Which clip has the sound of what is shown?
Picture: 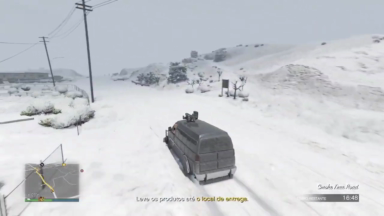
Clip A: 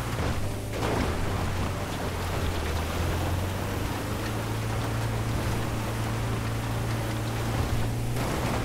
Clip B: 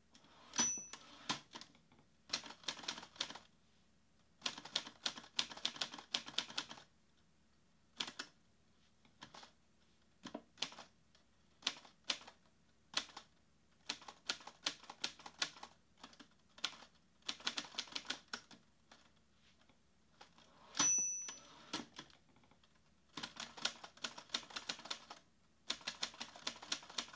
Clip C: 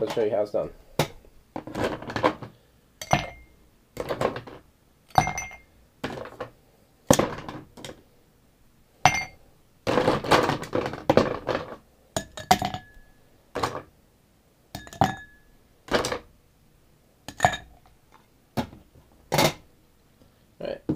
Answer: A